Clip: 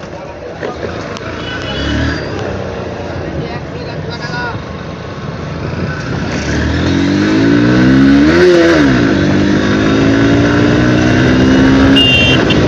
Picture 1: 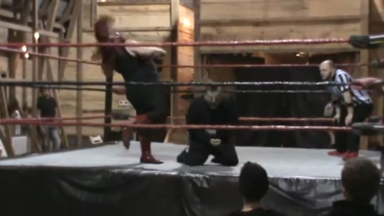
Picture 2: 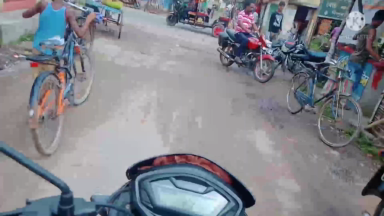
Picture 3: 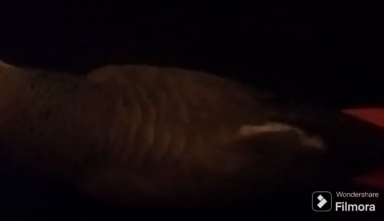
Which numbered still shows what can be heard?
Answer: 2